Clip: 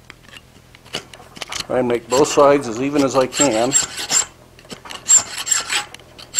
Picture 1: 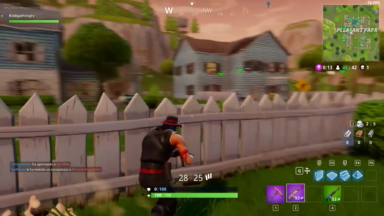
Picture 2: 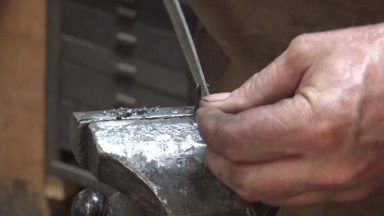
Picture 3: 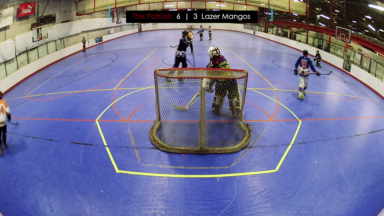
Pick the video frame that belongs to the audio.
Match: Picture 2